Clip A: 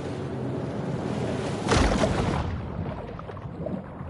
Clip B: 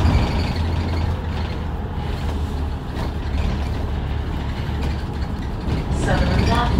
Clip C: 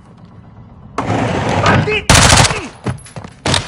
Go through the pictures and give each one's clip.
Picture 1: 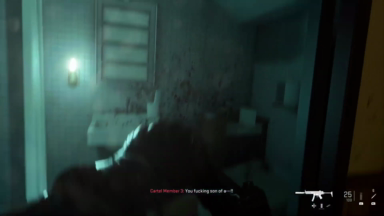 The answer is C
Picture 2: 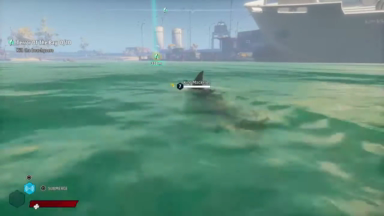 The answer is A